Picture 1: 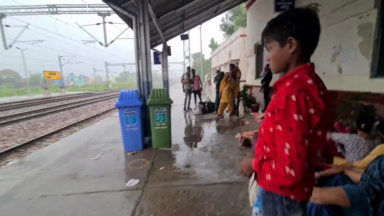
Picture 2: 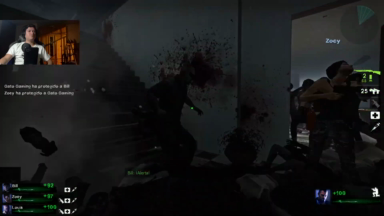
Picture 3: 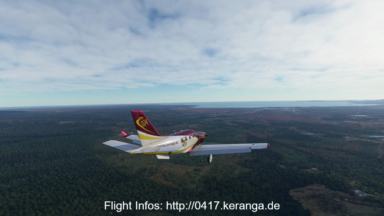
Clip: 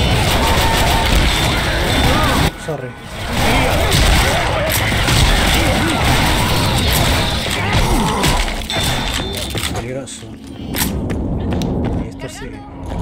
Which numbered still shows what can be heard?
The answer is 2